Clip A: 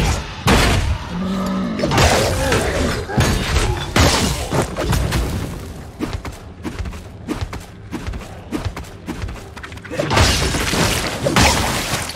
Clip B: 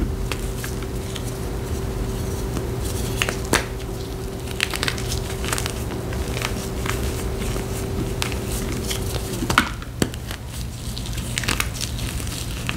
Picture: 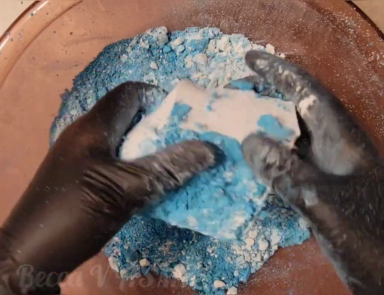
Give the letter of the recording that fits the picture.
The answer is B